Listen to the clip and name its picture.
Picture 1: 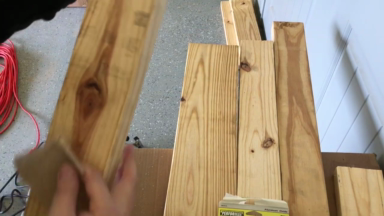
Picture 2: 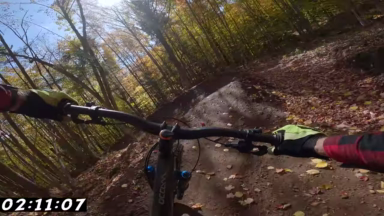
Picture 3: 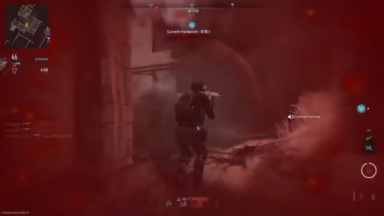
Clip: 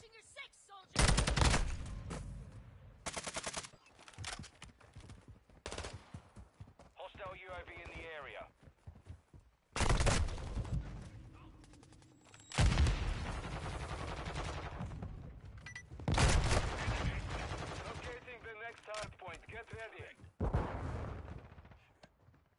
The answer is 3